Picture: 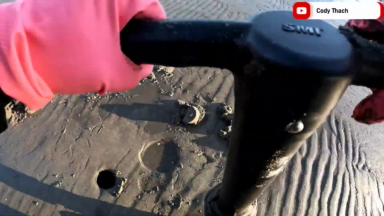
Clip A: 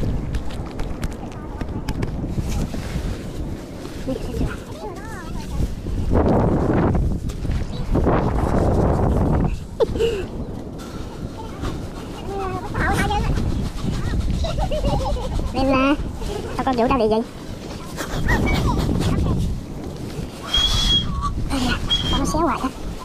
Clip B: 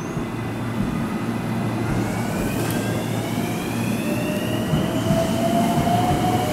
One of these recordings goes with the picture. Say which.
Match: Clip A